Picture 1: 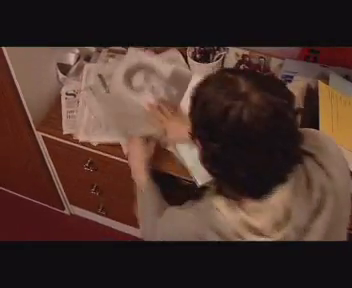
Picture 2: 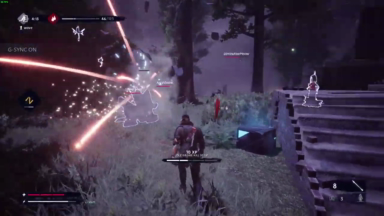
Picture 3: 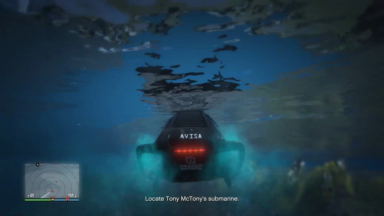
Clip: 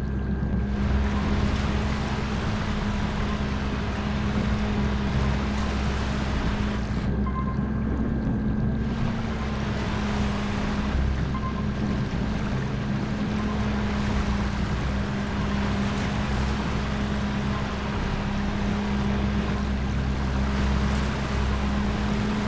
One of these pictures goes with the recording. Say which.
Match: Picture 3